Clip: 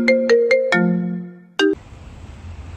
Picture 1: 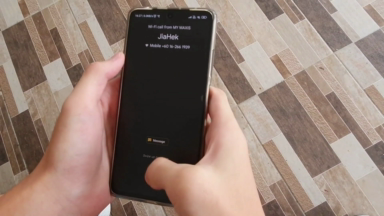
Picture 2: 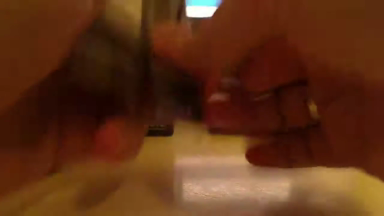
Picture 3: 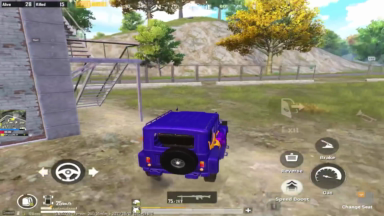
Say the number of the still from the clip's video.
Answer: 1